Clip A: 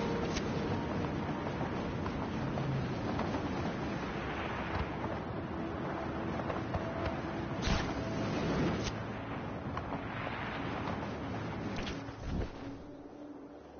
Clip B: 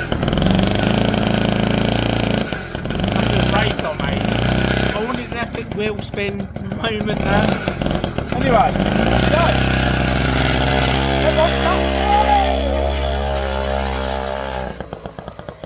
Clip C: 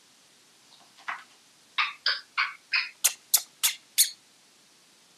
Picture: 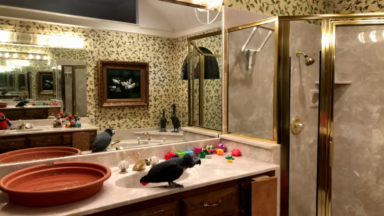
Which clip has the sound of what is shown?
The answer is C